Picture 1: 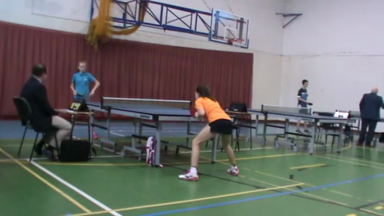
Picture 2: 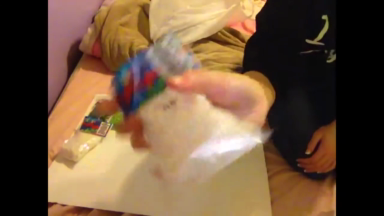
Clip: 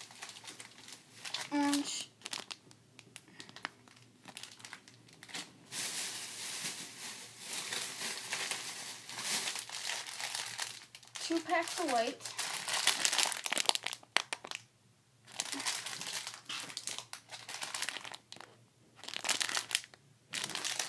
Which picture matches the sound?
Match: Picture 2